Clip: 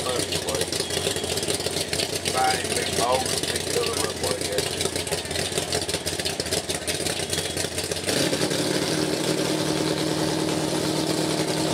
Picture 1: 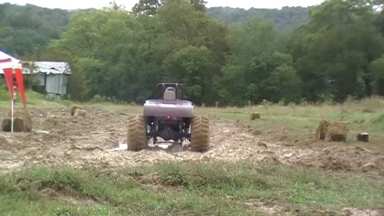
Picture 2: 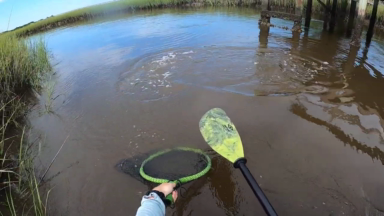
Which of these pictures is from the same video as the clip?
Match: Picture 1